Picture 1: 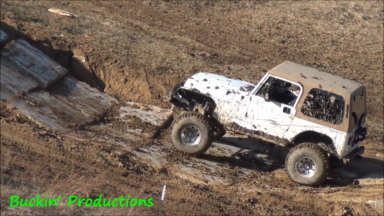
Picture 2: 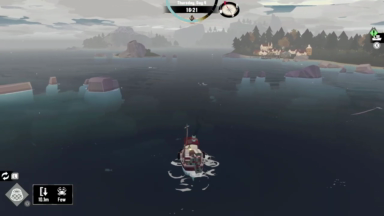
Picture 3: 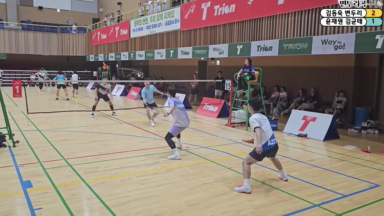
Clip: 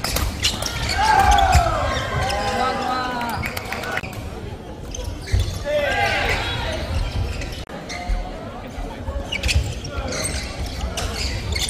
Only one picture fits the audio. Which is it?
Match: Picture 3